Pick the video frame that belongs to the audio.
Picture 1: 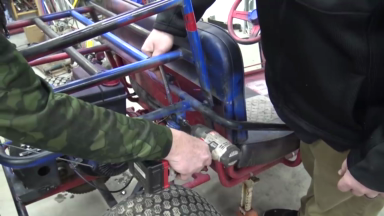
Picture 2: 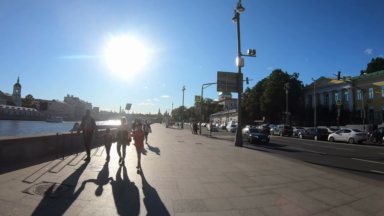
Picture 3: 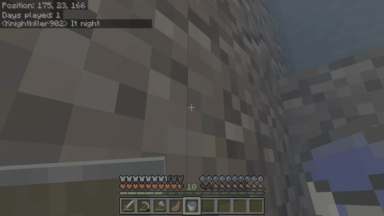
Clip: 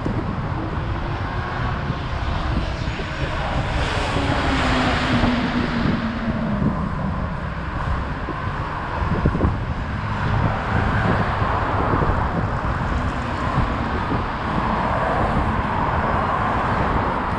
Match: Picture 2